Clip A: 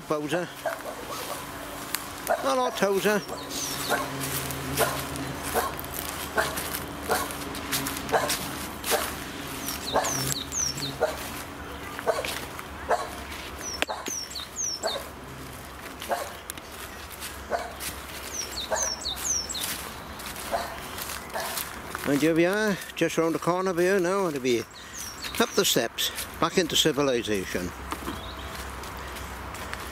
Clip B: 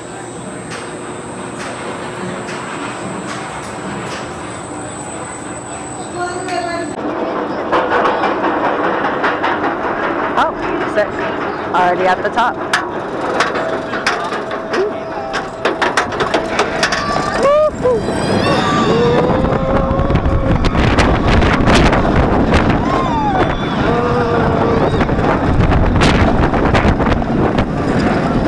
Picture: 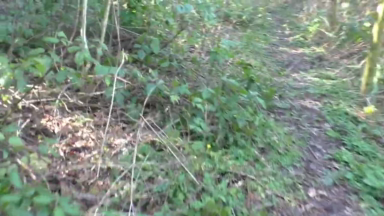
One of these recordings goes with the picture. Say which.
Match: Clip A